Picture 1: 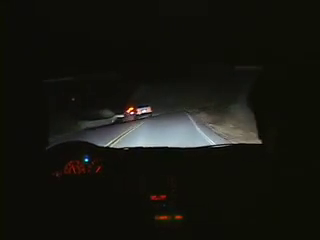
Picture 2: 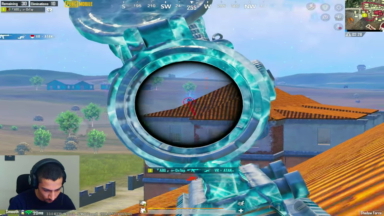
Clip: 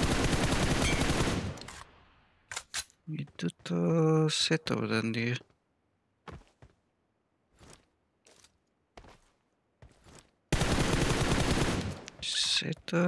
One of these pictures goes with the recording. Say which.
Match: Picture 2